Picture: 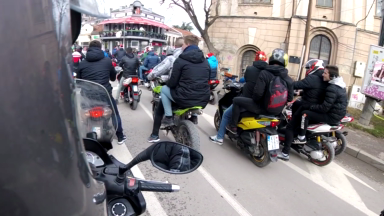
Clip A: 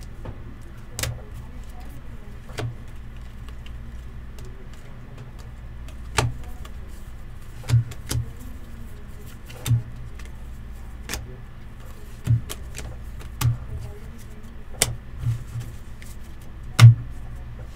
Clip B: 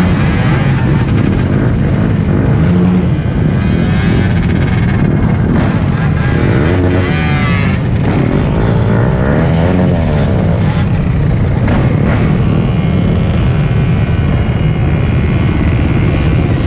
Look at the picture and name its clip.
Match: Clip B